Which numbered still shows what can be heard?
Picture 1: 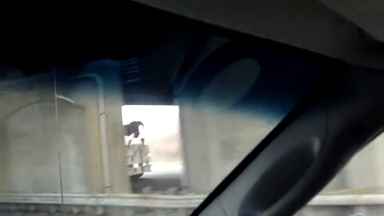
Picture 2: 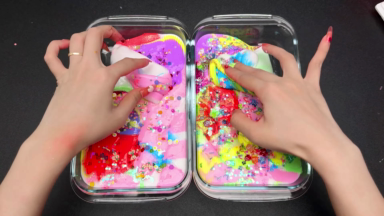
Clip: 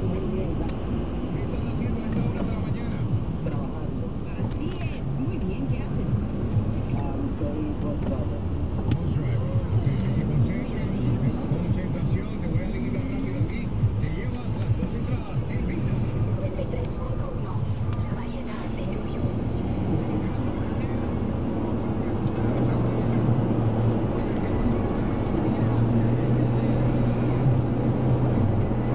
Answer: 1